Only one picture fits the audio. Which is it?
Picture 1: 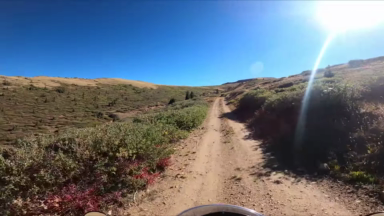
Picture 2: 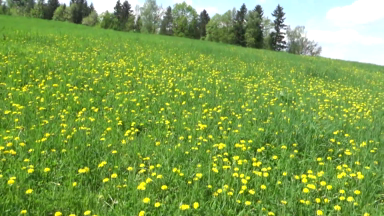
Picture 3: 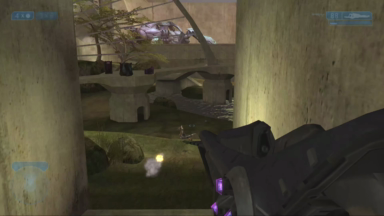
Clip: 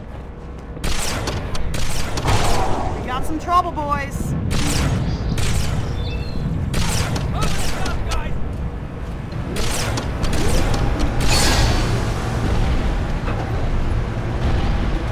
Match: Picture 3